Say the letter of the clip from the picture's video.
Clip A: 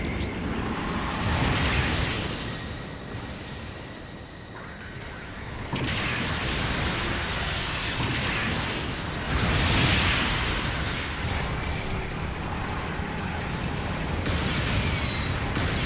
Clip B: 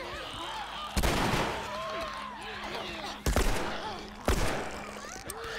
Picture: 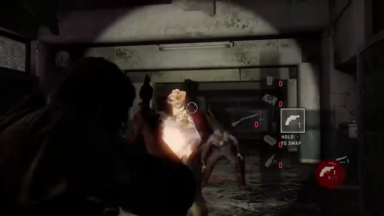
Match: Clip B